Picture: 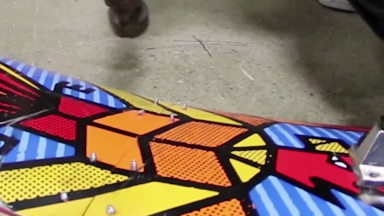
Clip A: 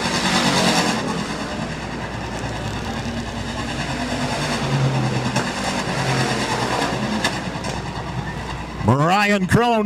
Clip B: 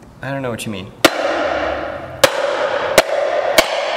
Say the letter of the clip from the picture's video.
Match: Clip B